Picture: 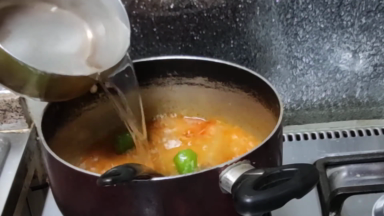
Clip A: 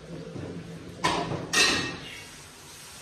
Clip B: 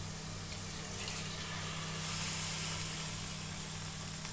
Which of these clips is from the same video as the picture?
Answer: B